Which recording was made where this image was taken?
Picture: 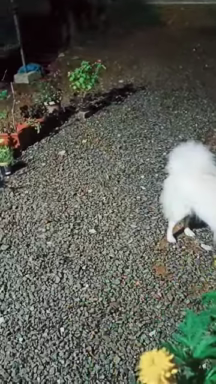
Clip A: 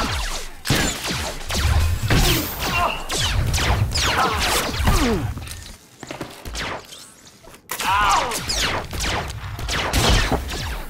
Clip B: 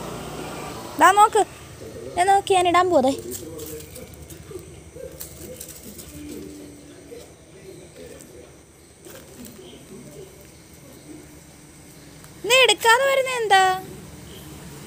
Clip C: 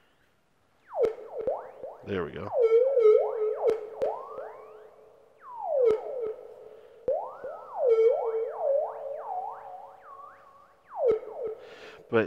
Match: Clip B